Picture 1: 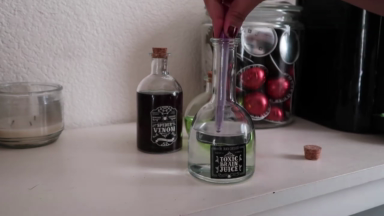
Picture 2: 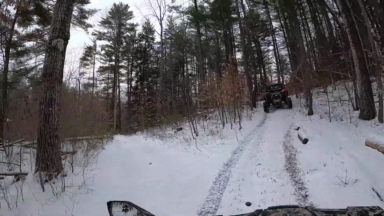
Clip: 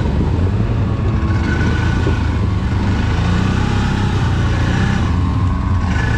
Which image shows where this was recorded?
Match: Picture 2